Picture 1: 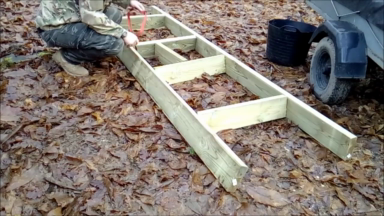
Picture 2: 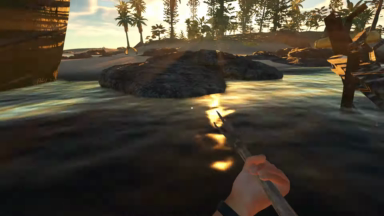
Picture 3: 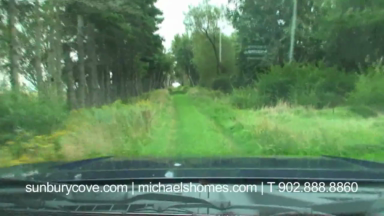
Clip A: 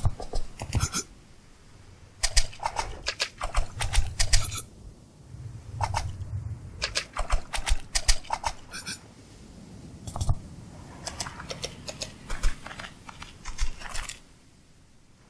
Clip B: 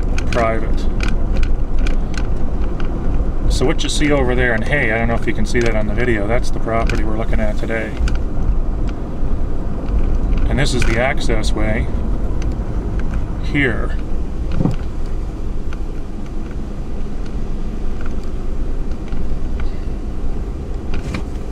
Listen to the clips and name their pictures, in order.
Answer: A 2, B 3